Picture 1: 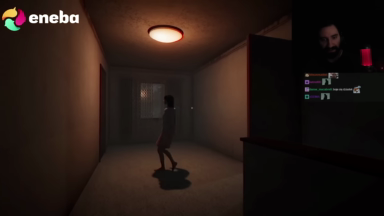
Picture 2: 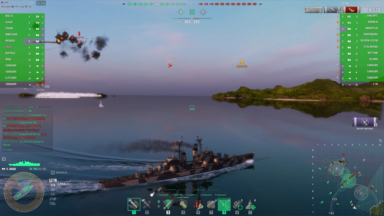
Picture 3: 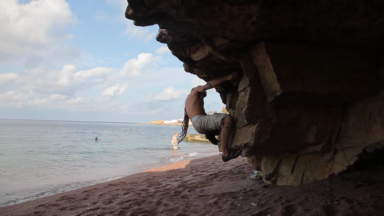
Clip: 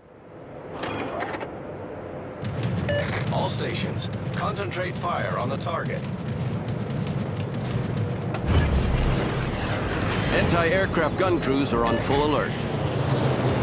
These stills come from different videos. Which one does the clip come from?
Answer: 2